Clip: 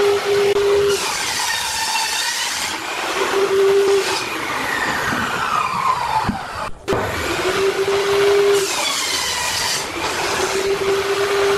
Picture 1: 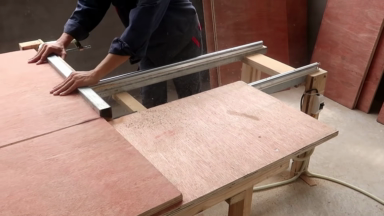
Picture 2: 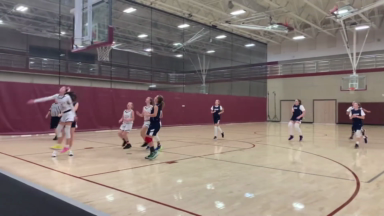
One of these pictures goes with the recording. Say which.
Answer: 1